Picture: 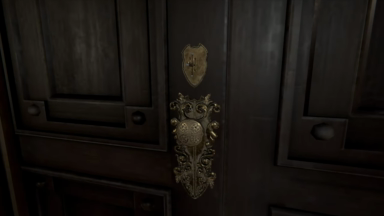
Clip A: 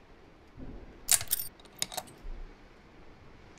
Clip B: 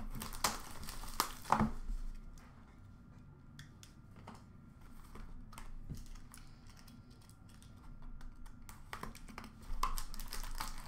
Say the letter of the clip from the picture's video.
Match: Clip A